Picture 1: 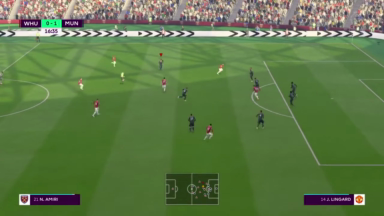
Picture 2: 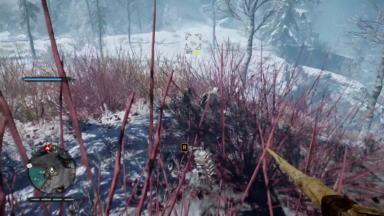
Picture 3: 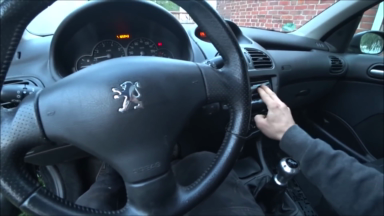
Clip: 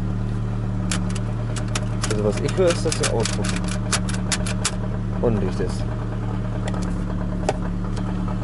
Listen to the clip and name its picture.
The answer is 3